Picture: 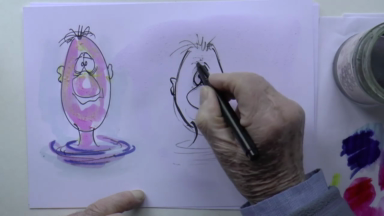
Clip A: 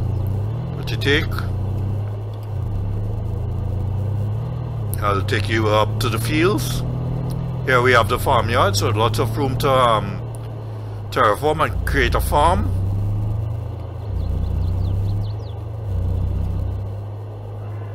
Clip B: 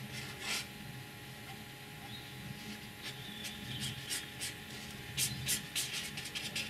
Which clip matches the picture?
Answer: B